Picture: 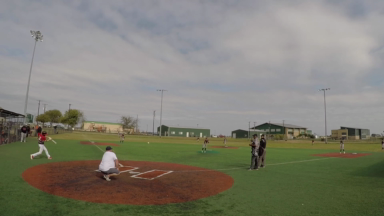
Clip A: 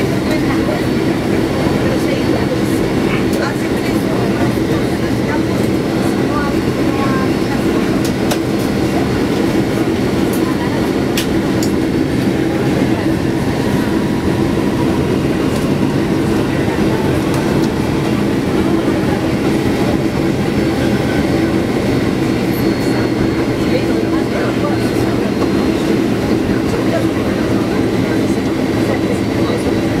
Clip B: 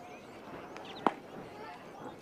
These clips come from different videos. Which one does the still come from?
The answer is B